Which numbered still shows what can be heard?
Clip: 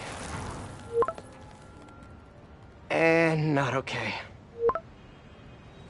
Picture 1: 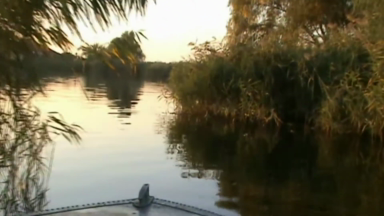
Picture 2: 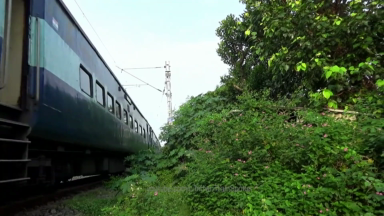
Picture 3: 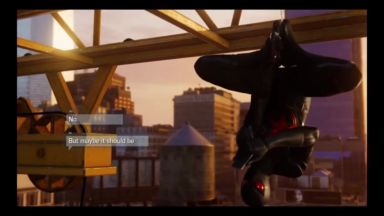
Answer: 3